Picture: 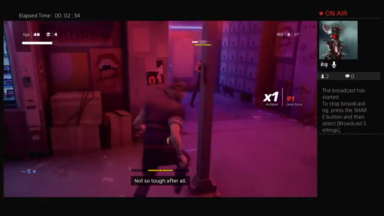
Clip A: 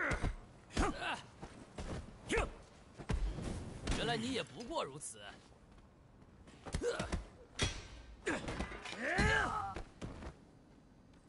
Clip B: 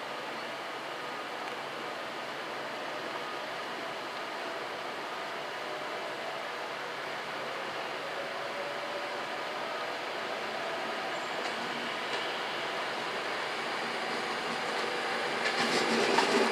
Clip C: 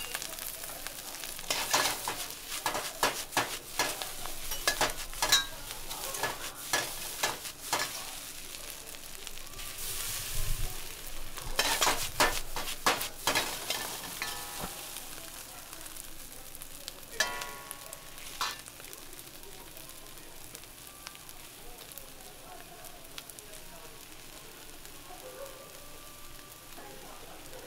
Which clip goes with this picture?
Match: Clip A